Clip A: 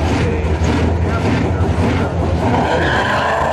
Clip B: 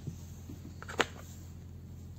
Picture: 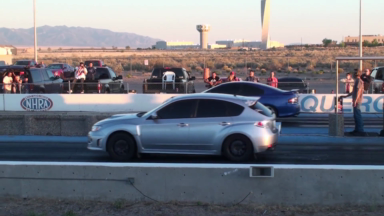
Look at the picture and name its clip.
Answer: A